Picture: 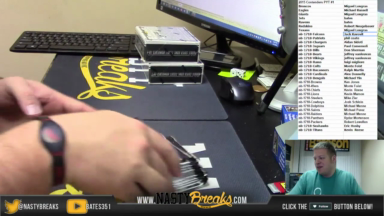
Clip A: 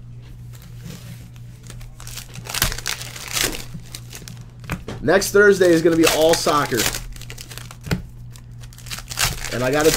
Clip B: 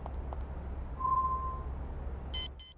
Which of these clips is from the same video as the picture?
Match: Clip A